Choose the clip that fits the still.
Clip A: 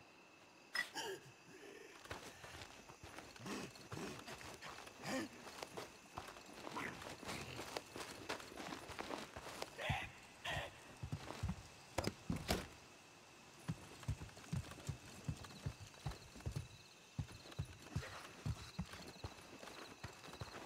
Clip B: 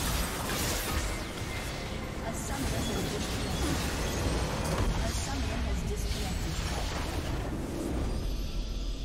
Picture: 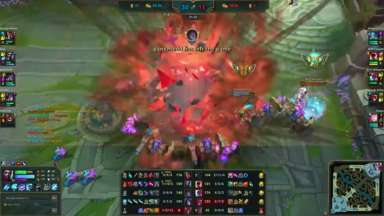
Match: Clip B